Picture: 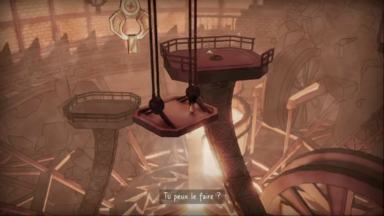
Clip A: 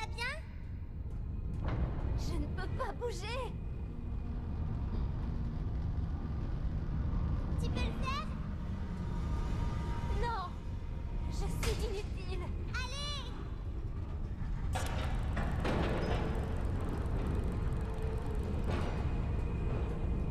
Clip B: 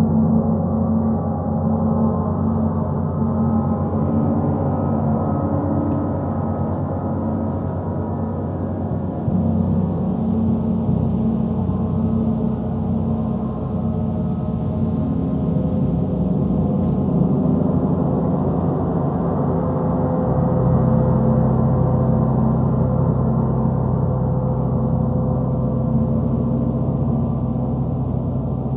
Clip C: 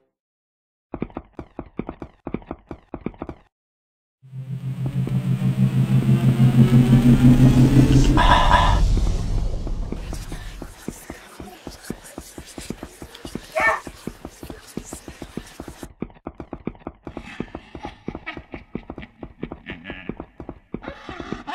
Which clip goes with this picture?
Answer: A